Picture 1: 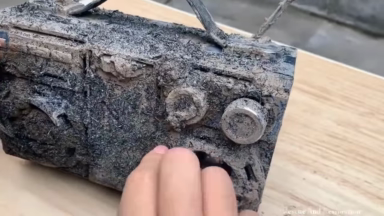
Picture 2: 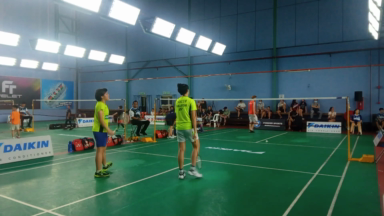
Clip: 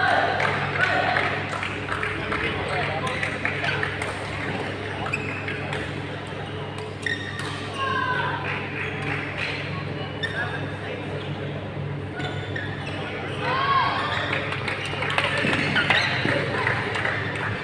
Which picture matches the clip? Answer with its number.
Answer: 2